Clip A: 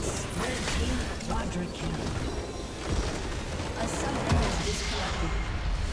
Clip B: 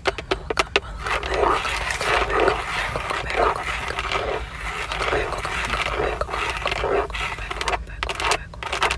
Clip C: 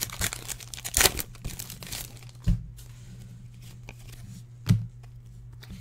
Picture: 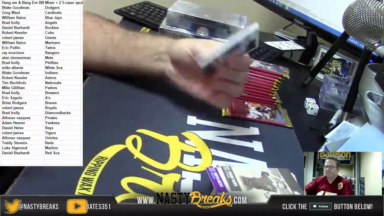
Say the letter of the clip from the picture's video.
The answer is C